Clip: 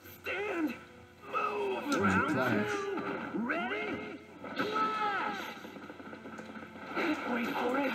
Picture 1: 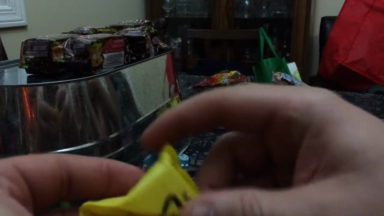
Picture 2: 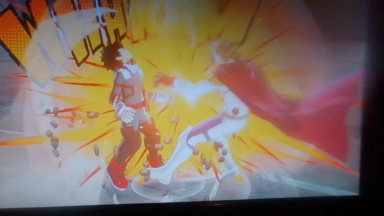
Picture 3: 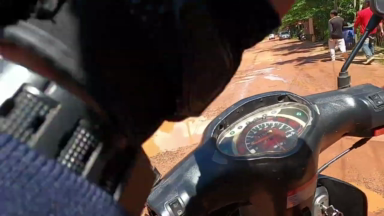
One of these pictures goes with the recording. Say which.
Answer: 2